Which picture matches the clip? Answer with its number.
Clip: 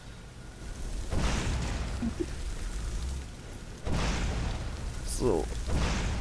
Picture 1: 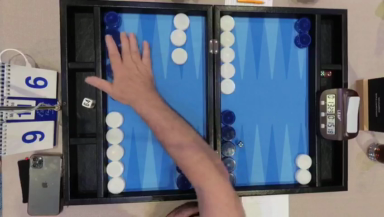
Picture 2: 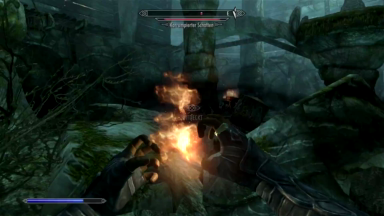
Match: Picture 2